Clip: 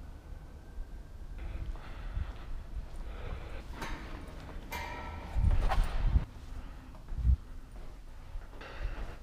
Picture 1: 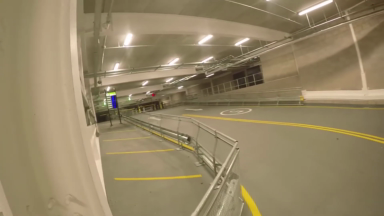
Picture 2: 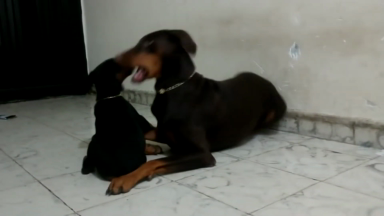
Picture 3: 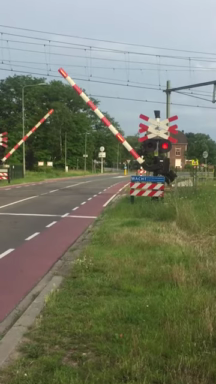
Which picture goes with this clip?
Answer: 1